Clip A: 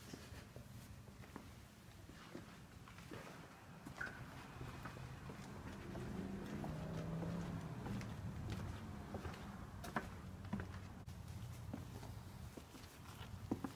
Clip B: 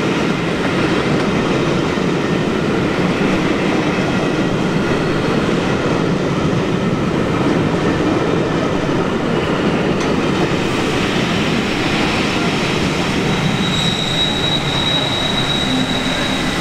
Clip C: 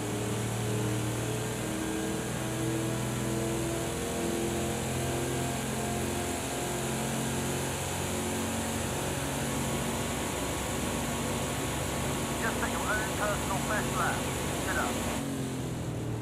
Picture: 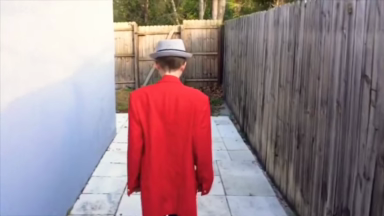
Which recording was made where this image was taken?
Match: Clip A